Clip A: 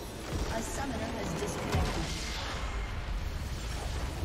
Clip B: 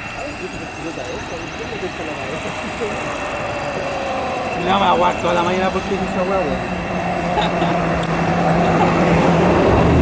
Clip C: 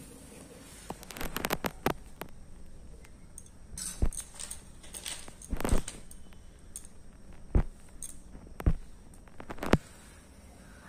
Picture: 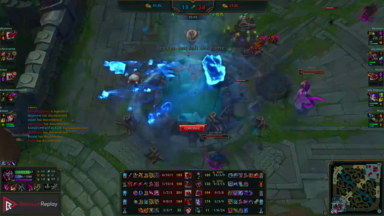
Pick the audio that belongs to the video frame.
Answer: A